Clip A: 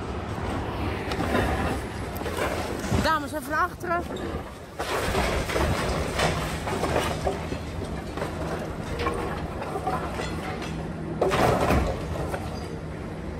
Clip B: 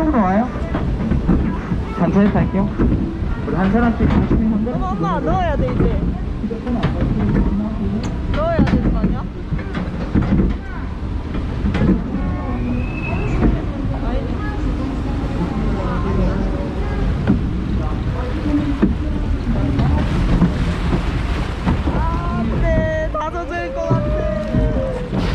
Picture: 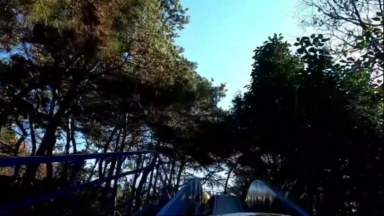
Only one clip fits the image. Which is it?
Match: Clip B